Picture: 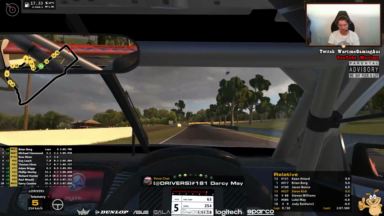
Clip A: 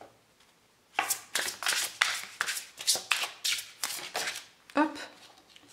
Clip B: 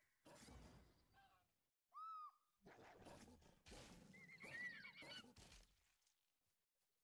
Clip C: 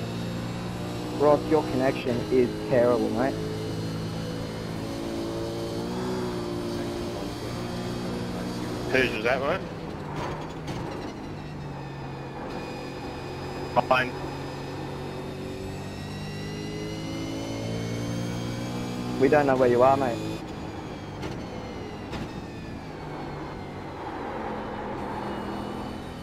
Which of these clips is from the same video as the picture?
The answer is C